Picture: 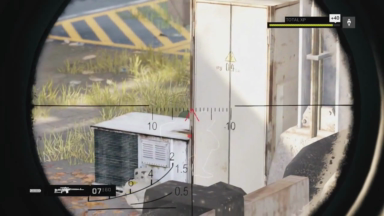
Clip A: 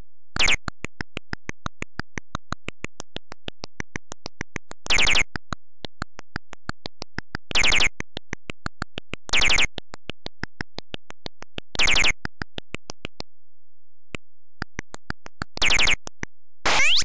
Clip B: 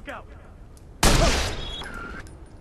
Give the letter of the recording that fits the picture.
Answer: B